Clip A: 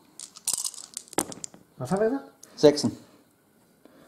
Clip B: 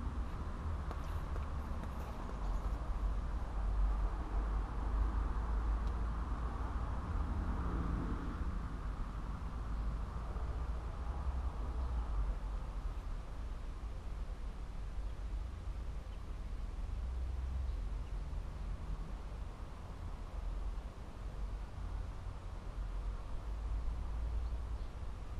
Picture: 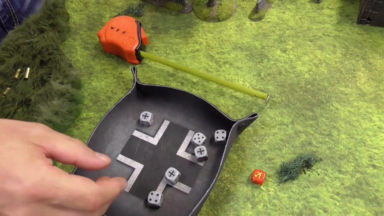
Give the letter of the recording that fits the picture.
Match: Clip A